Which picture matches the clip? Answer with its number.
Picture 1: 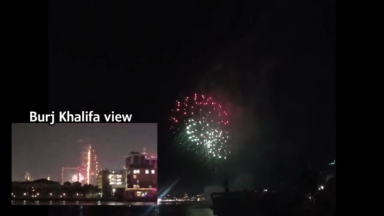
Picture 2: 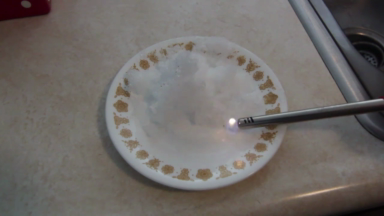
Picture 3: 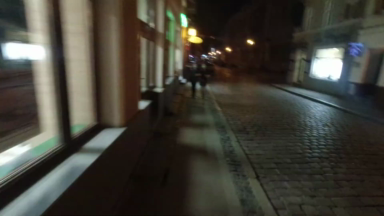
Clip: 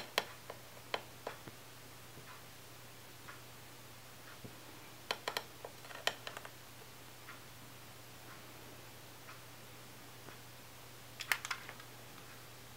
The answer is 2